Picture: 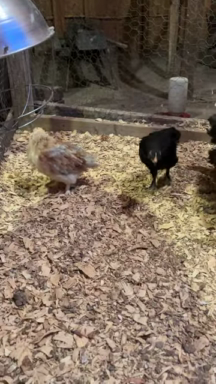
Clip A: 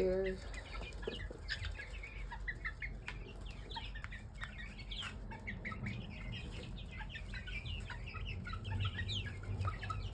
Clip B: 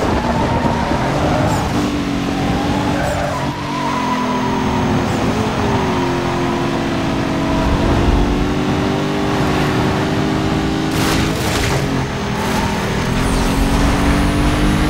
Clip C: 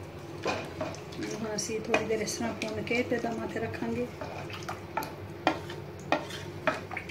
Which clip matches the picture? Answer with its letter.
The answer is A